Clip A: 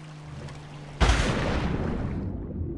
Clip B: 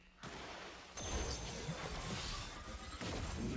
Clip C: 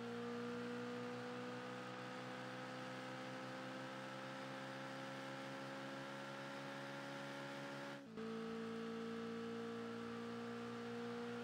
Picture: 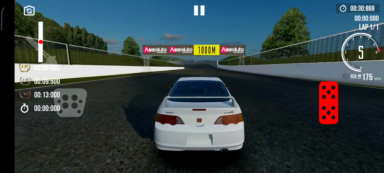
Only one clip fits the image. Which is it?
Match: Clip C